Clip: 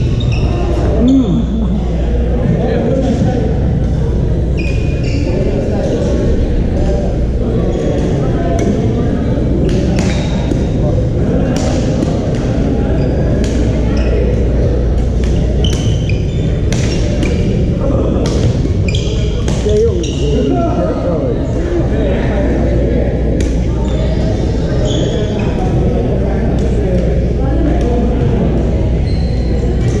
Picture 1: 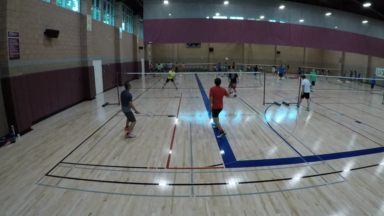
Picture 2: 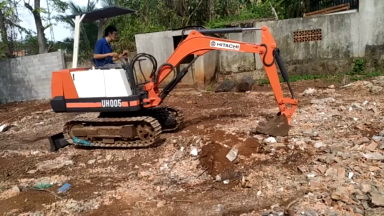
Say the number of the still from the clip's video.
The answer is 1